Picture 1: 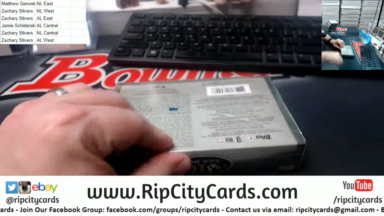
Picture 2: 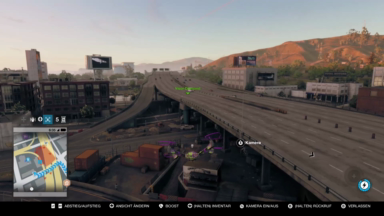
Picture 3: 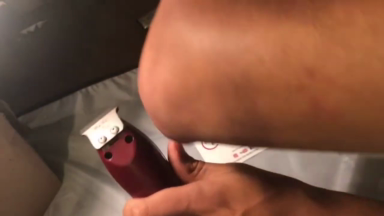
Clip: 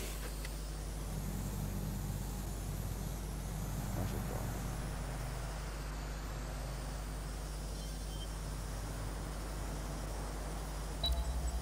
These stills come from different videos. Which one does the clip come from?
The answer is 2